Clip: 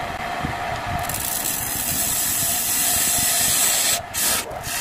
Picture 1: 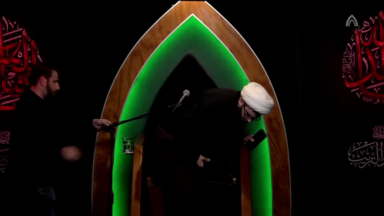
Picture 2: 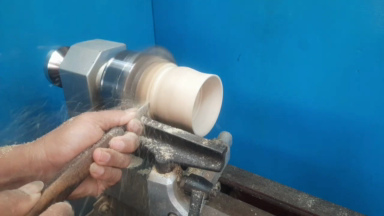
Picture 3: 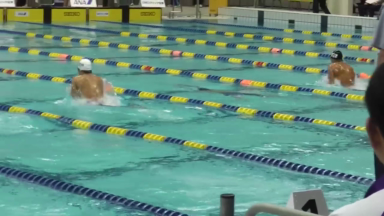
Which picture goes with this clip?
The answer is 2